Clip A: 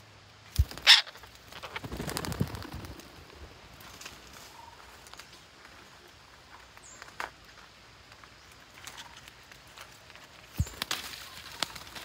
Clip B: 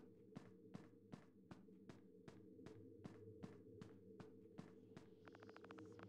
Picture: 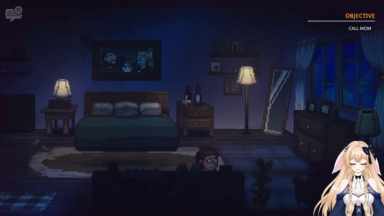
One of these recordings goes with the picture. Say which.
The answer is B